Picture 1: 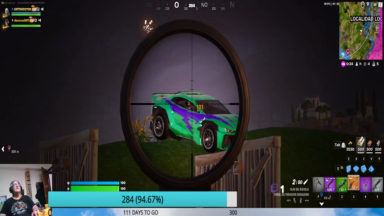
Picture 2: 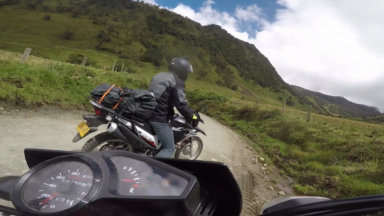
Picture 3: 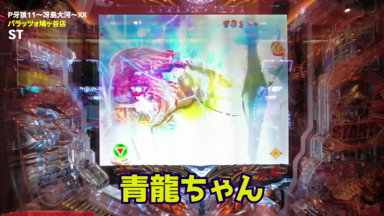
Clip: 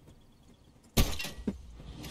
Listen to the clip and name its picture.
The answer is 1